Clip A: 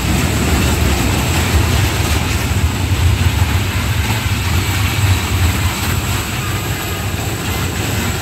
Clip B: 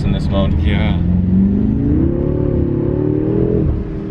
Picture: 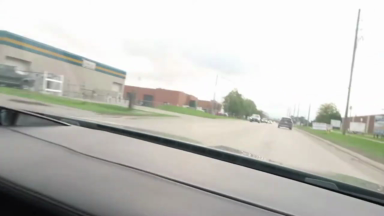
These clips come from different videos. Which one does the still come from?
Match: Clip B